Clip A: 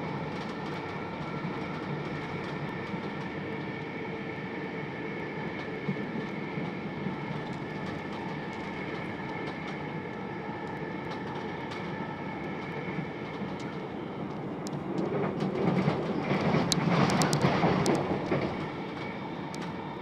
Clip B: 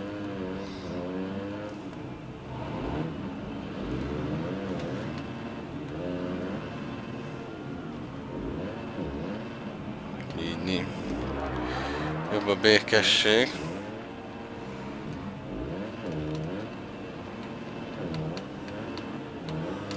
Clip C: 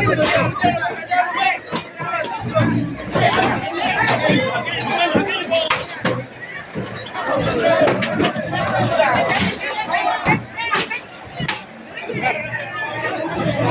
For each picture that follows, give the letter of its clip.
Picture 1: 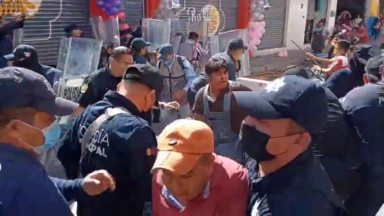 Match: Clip C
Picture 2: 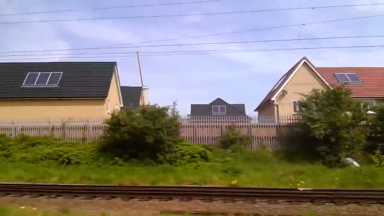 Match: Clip A